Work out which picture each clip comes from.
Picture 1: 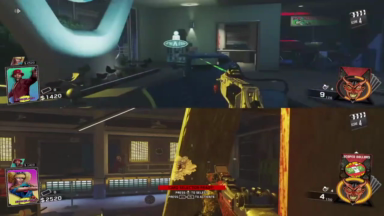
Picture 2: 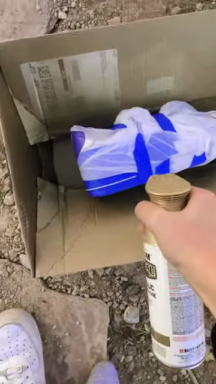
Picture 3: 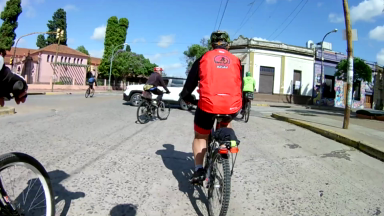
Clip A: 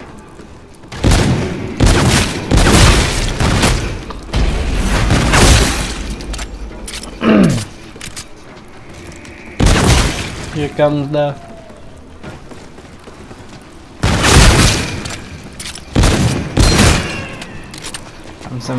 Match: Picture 1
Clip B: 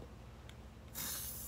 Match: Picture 2